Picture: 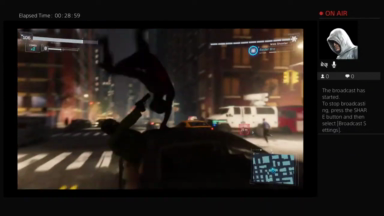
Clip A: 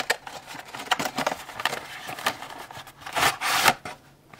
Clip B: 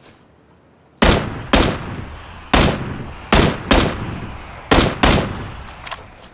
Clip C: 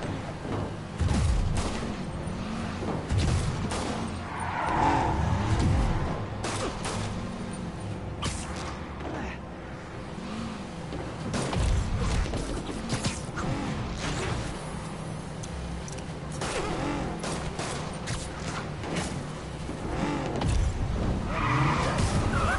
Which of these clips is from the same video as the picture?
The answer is C